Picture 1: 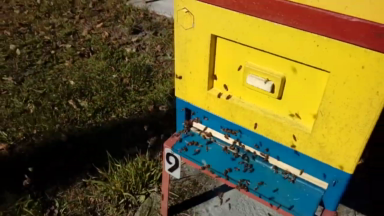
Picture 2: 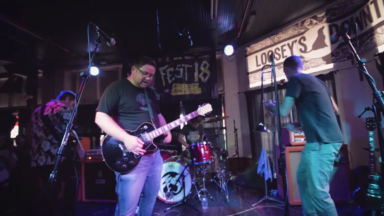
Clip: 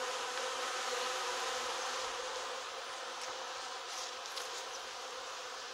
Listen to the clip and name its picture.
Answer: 1